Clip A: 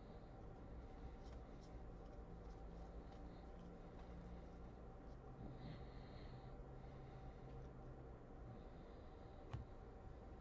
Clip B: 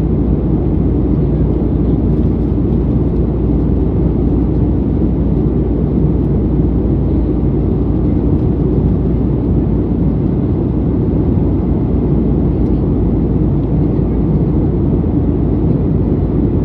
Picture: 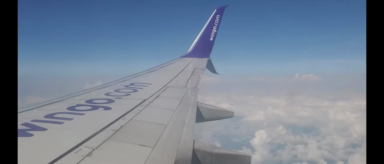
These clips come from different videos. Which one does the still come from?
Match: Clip B